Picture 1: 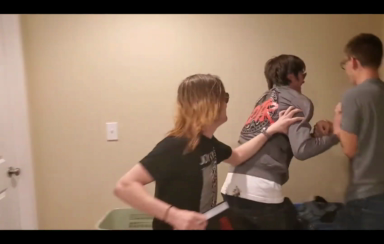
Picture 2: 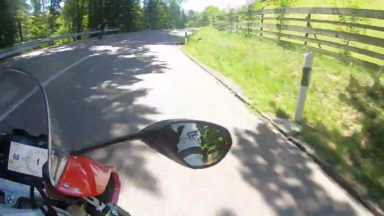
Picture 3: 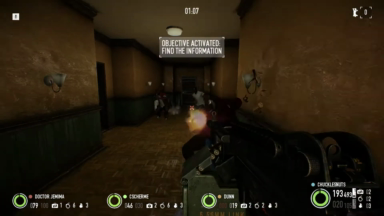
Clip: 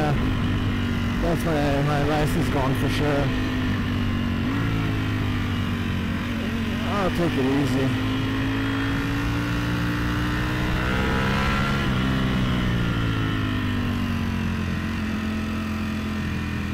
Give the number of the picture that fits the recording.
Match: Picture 2